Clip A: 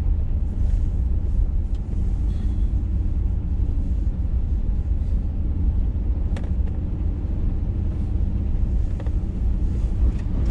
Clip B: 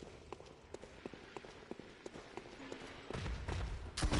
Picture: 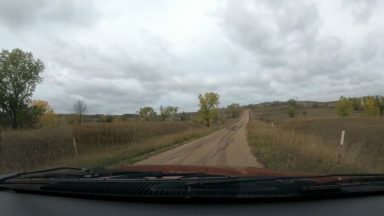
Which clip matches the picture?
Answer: A